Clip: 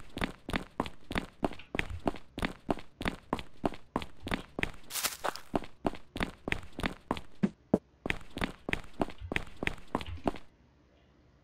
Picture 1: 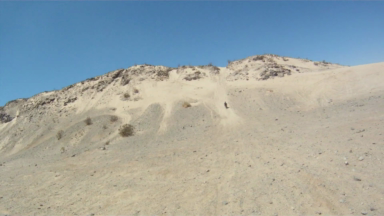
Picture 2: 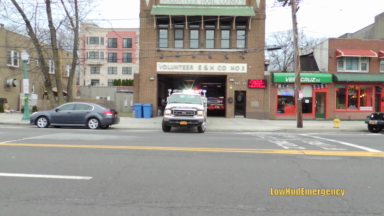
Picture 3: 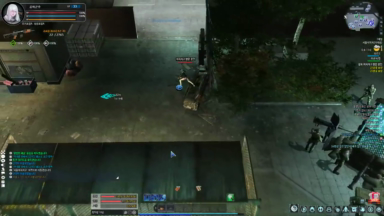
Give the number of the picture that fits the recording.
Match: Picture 3